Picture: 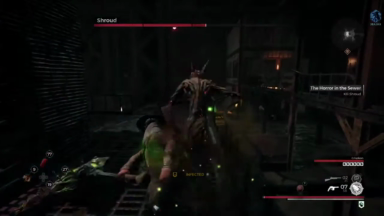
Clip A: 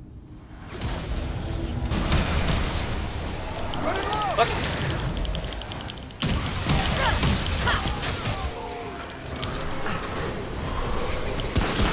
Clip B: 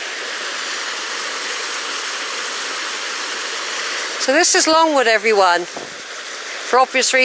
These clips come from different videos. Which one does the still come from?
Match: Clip A